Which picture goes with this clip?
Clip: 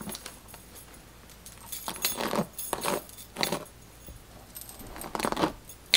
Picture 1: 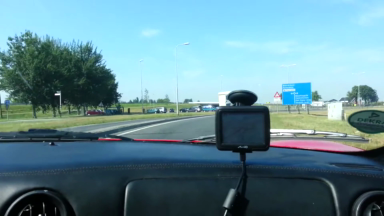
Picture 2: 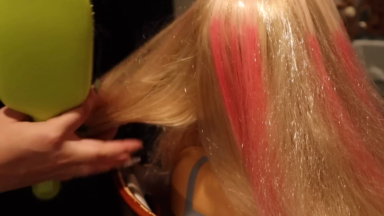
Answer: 2